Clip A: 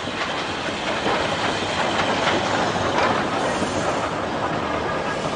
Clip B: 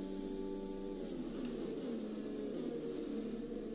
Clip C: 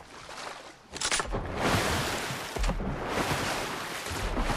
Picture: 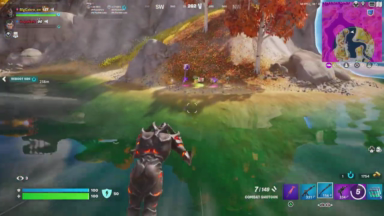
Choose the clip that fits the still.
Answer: C